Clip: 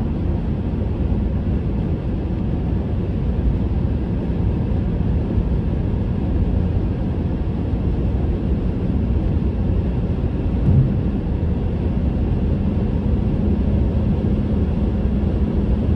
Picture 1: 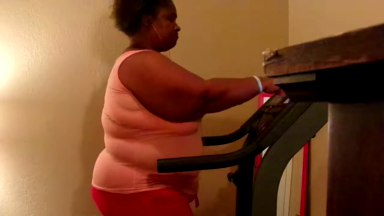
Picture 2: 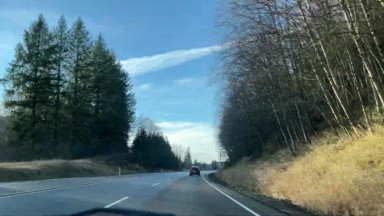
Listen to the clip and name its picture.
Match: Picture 2